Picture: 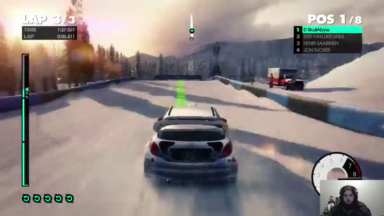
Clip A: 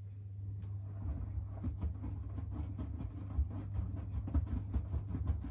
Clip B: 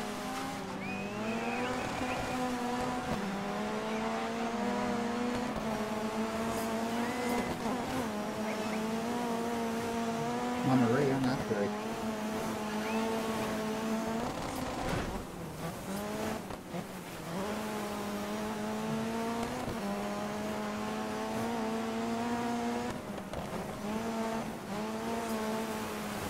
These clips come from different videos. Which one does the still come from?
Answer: B